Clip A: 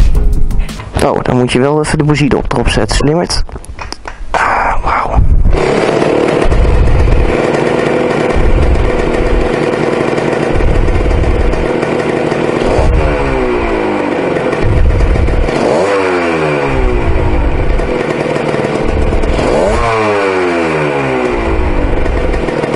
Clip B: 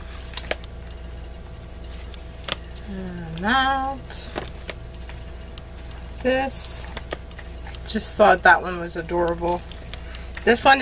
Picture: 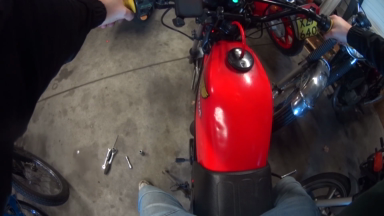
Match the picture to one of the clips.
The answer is A